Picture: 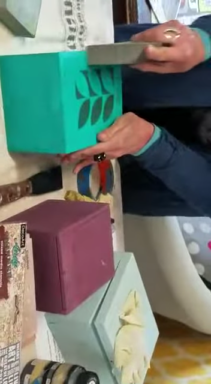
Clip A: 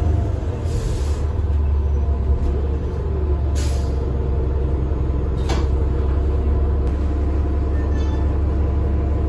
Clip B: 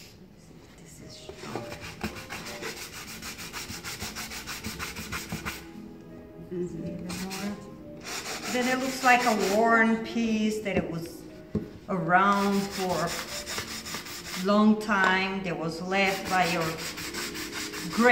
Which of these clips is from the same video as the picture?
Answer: B